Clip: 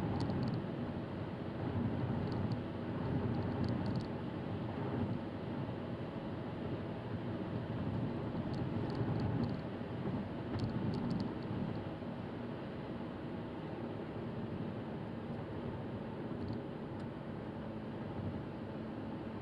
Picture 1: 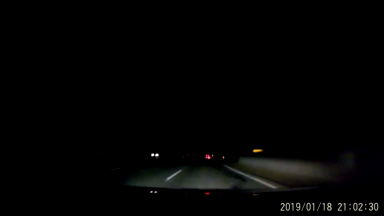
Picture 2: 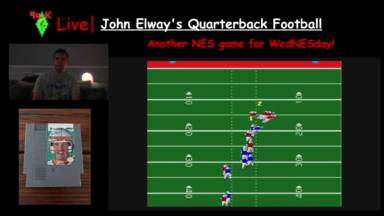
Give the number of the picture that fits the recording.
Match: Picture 1